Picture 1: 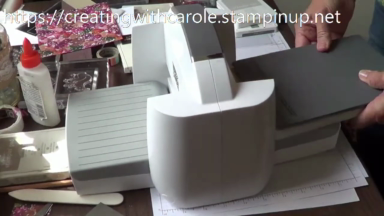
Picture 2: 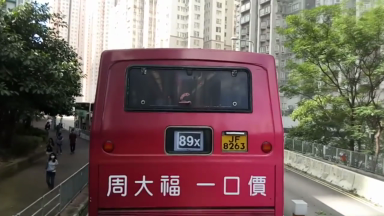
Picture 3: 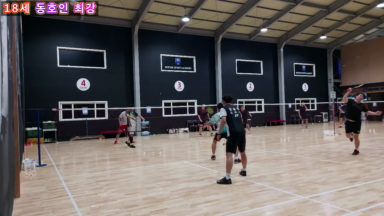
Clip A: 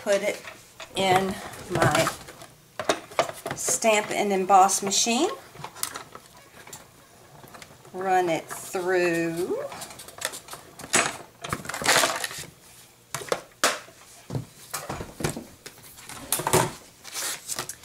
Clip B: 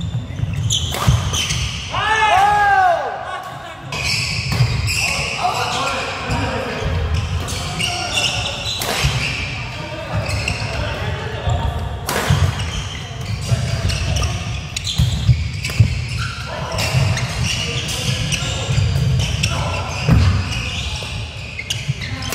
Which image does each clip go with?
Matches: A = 1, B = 3